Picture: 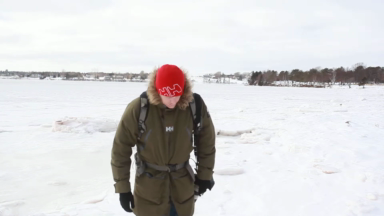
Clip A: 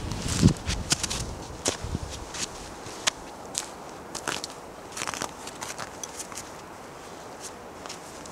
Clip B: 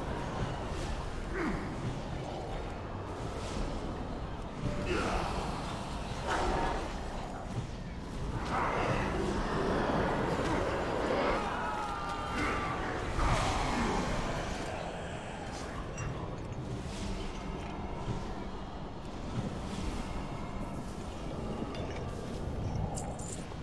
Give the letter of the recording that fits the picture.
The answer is A